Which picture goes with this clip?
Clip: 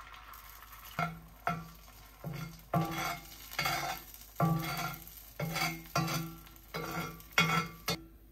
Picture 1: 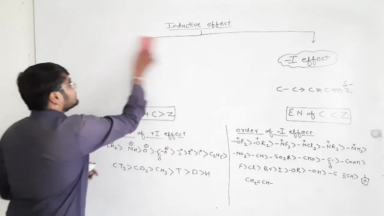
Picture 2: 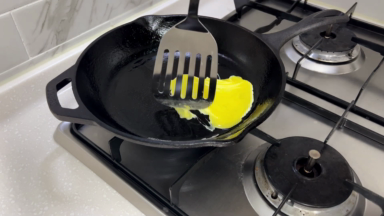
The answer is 2